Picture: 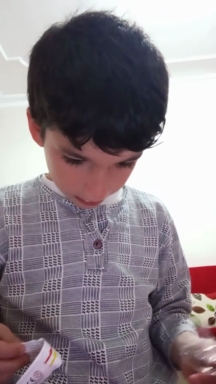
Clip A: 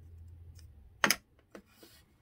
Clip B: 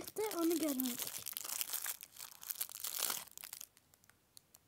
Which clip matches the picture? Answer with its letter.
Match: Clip B